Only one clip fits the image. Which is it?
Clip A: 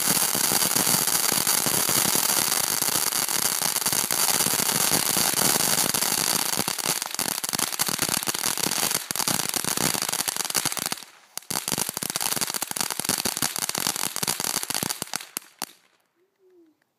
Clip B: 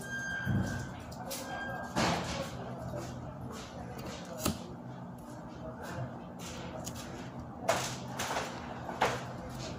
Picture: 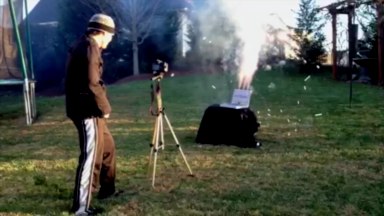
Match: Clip A